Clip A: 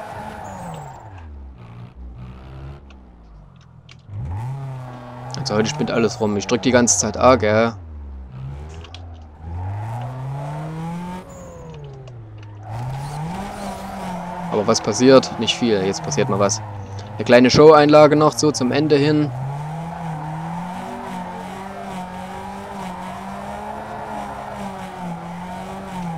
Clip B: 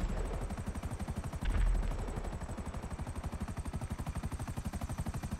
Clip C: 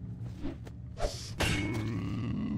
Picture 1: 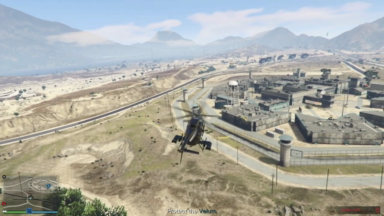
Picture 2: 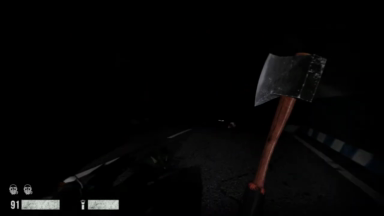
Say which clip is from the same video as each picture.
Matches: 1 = B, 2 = C